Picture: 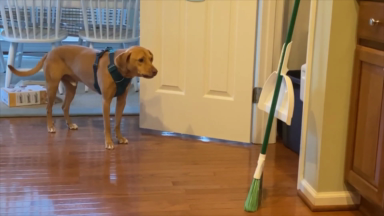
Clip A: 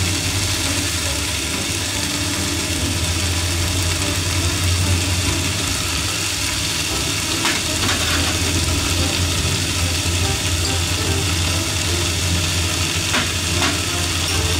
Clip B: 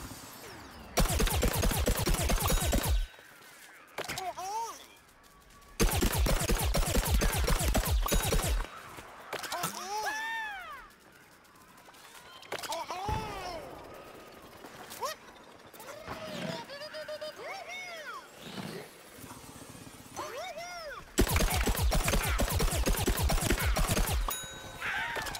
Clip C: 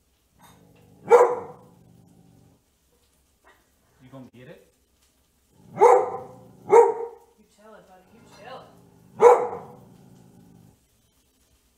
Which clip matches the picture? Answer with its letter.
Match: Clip C